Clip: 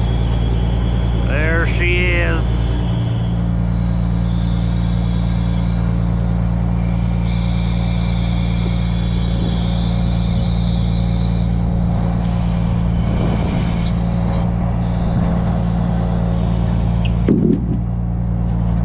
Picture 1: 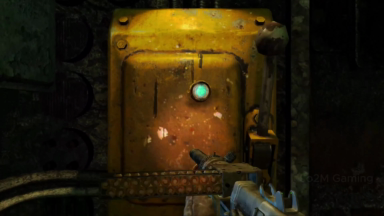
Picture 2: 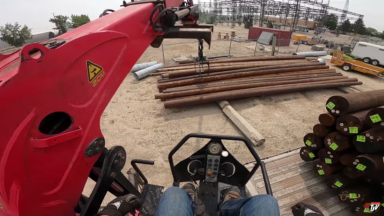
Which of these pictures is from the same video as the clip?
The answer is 2